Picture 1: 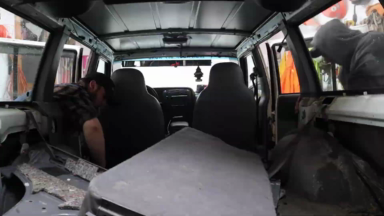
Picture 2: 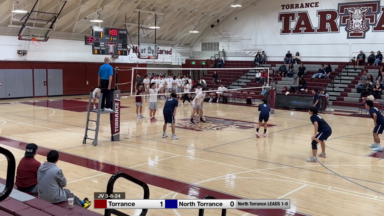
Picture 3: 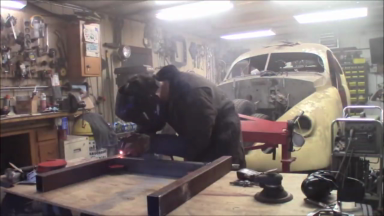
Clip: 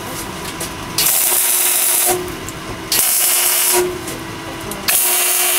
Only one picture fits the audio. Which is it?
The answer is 3